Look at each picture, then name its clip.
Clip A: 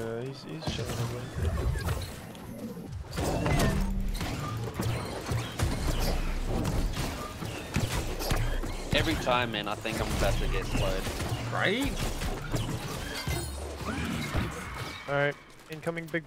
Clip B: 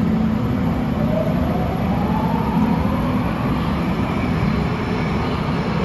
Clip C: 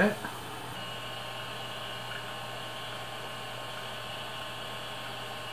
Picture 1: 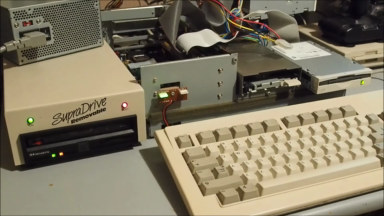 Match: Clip C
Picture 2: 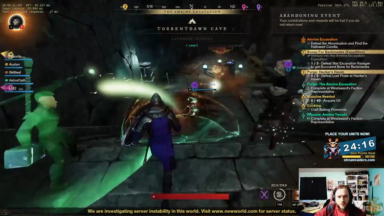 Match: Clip A